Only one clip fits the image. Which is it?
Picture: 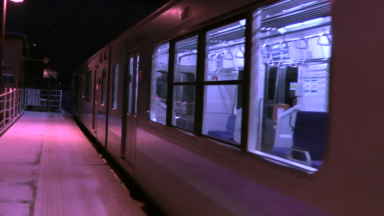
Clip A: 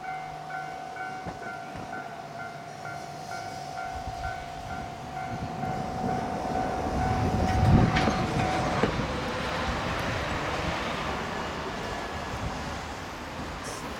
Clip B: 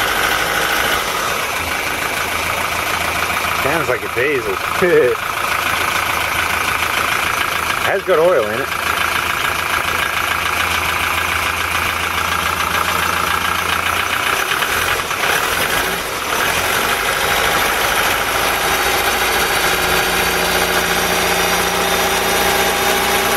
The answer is A